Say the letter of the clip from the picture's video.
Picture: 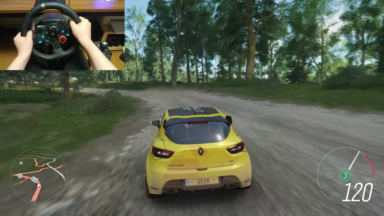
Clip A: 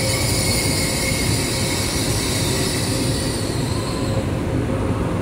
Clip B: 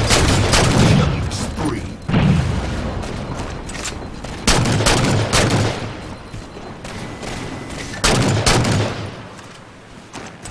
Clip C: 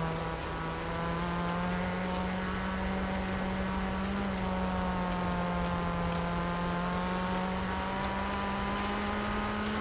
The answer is C